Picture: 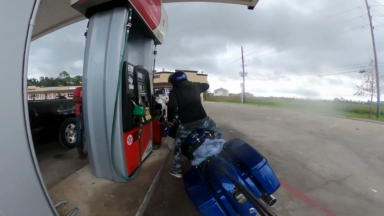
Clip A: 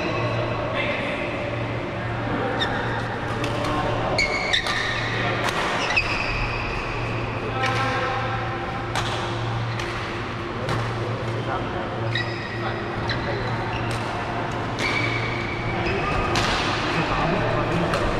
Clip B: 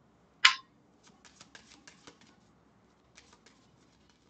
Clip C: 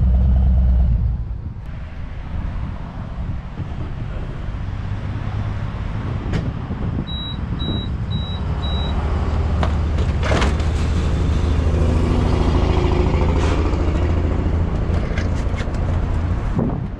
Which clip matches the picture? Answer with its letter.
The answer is C